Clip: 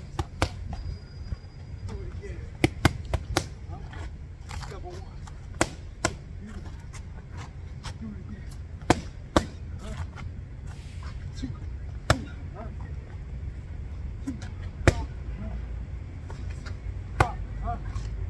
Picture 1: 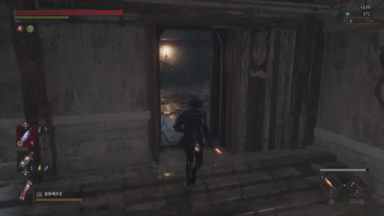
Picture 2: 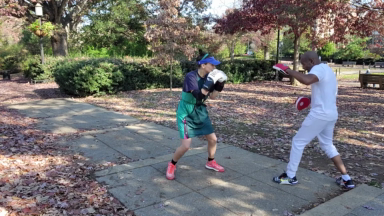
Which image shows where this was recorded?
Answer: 2